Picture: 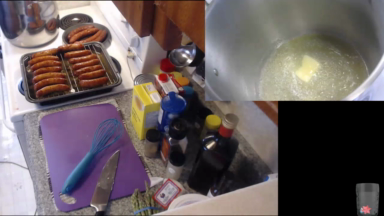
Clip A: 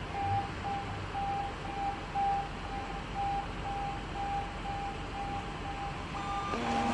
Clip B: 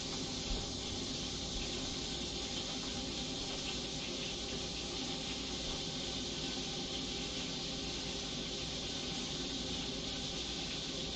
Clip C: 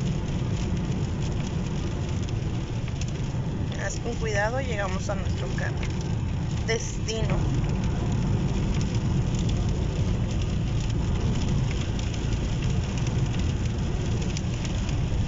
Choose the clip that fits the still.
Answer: B